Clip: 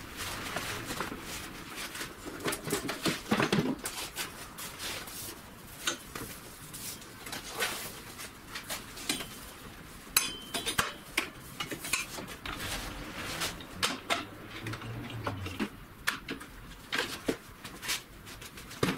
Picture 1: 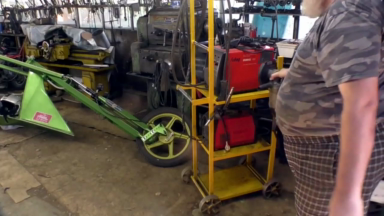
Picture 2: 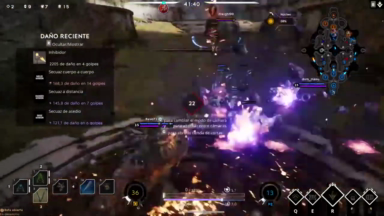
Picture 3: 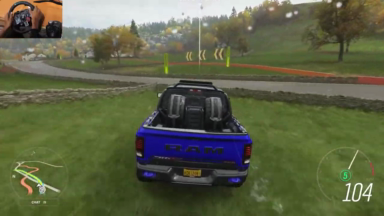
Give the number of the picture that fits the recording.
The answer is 1